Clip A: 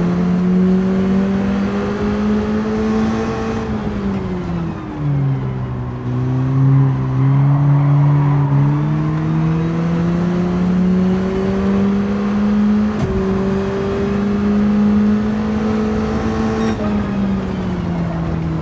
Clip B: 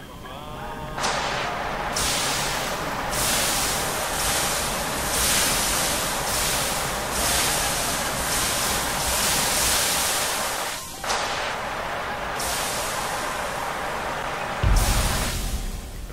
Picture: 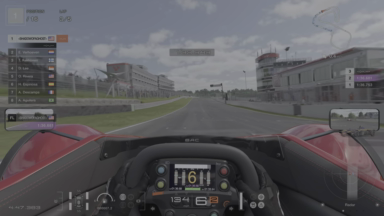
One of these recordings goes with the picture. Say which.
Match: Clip A